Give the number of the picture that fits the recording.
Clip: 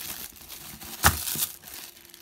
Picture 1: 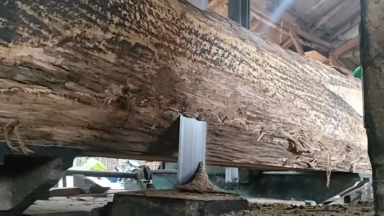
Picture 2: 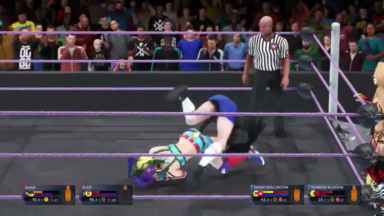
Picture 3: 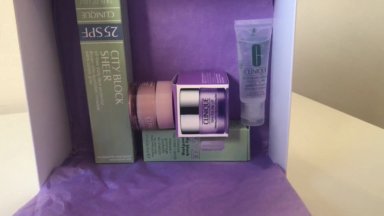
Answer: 3